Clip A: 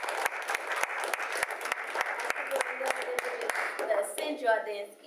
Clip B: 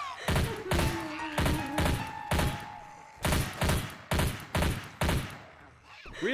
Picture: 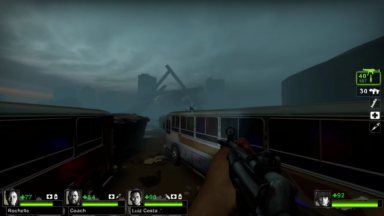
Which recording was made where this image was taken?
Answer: B